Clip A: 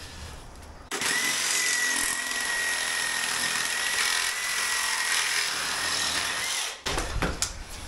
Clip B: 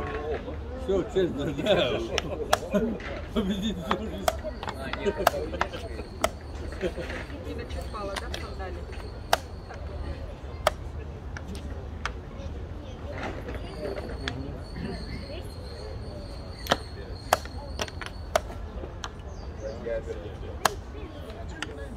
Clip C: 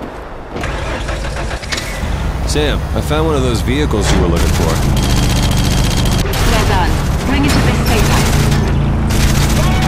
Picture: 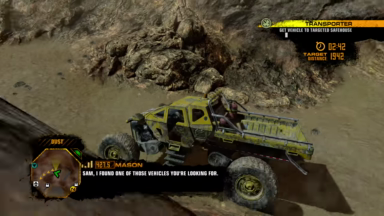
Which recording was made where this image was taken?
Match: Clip C